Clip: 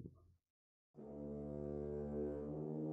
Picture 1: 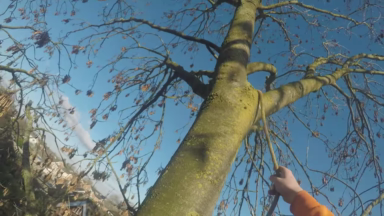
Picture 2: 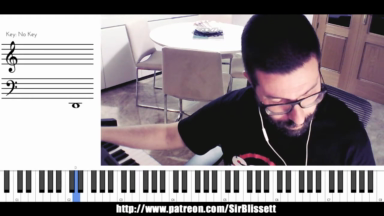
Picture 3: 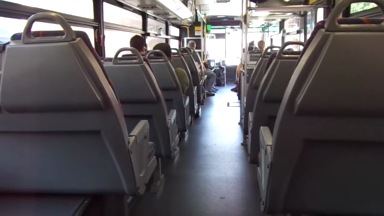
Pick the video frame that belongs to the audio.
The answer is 2